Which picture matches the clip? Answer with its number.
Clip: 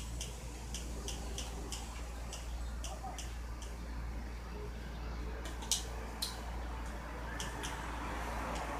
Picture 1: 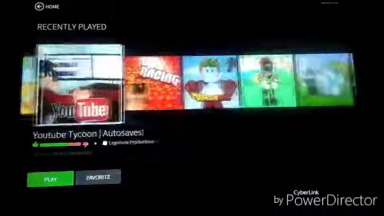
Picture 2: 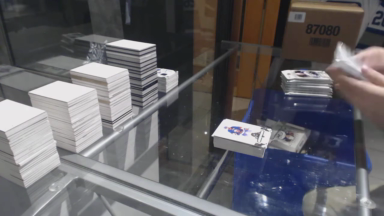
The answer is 1